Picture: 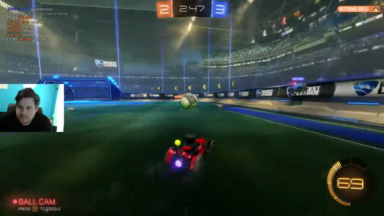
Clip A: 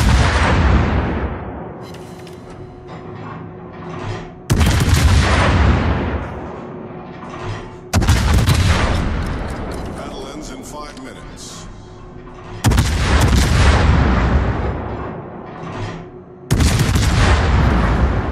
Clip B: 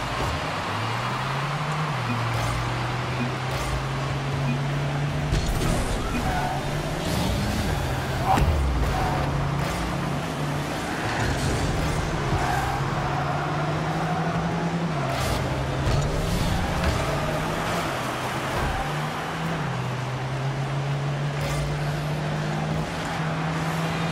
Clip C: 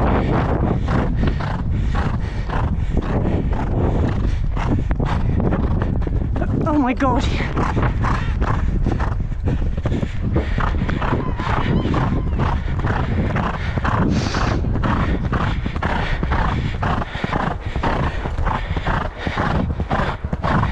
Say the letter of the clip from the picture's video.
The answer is B